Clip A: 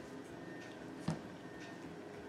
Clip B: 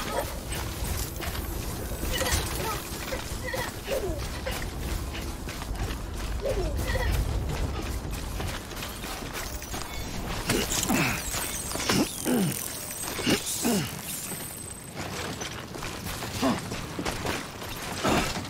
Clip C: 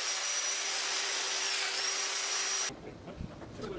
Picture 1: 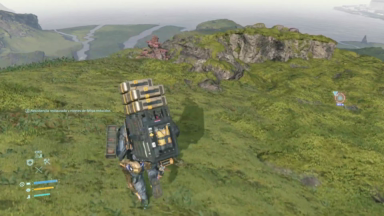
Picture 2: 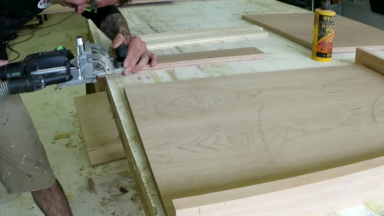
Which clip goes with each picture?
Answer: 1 B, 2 C